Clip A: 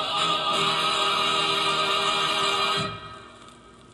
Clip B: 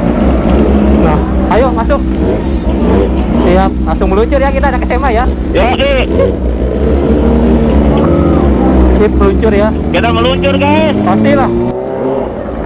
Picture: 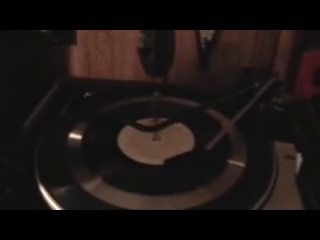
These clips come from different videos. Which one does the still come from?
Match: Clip A